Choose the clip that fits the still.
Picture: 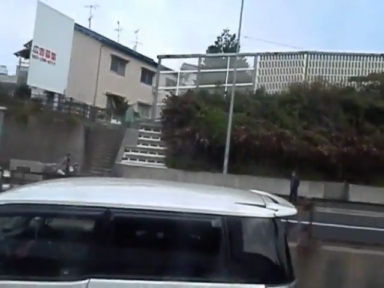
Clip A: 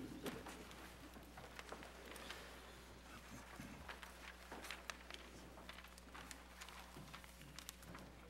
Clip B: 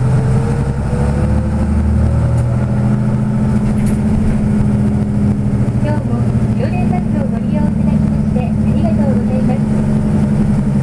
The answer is B